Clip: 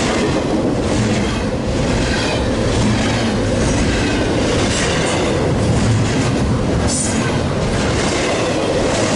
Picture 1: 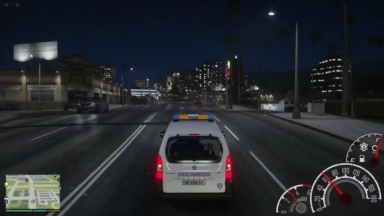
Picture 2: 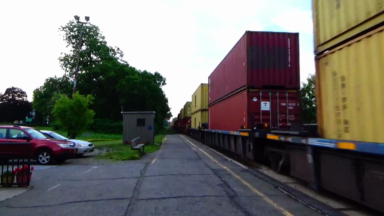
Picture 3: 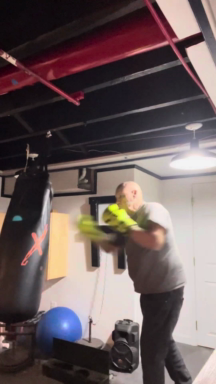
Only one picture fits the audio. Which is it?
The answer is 2